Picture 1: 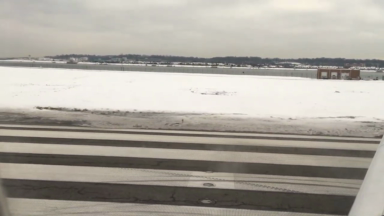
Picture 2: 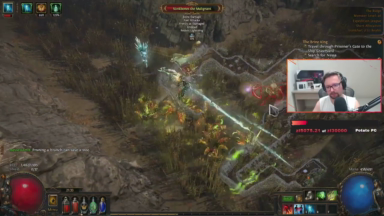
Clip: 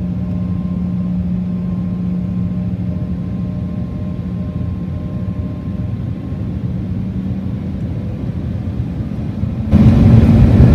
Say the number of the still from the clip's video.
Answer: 1